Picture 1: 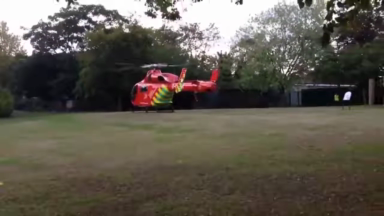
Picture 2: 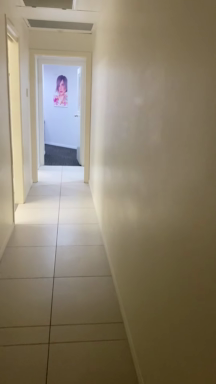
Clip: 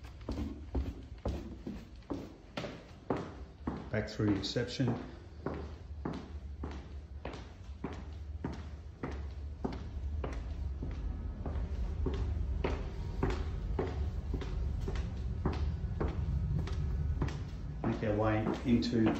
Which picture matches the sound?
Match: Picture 2